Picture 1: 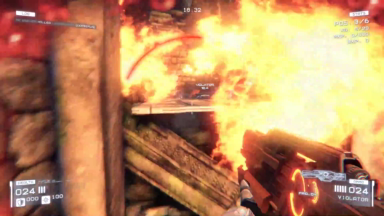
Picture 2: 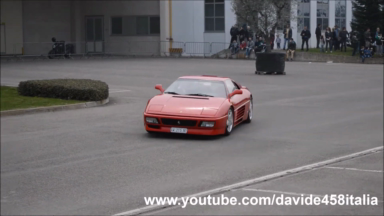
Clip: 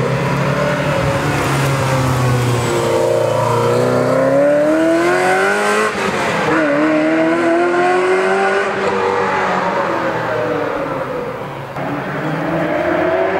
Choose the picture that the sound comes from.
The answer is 2